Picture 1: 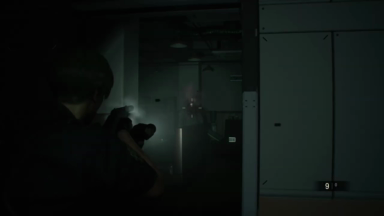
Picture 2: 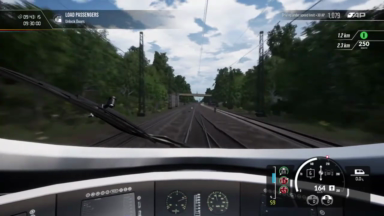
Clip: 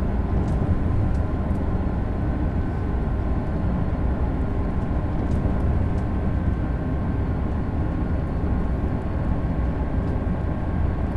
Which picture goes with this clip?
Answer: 2